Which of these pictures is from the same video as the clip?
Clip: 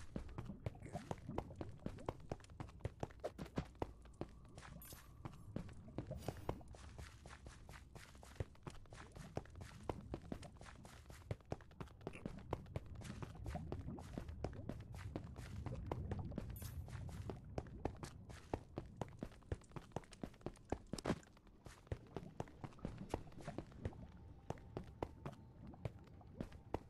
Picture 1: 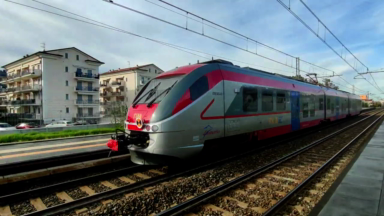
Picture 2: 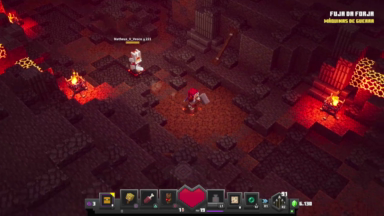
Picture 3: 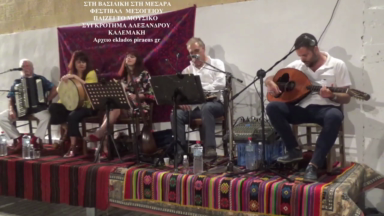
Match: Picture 2